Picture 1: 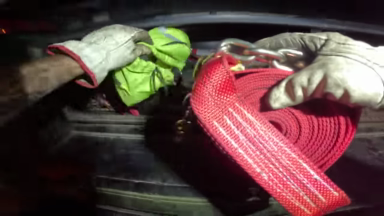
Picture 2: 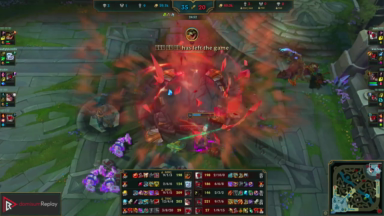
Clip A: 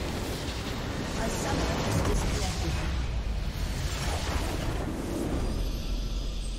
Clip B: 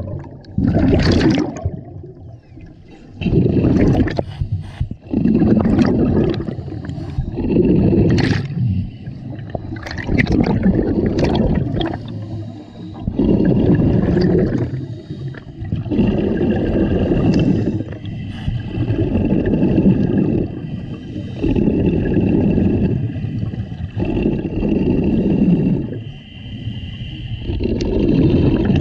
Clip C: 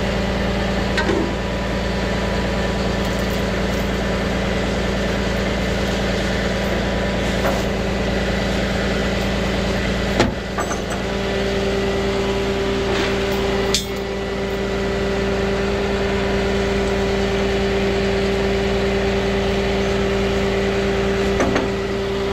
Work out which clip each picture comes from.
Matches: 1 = C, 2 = A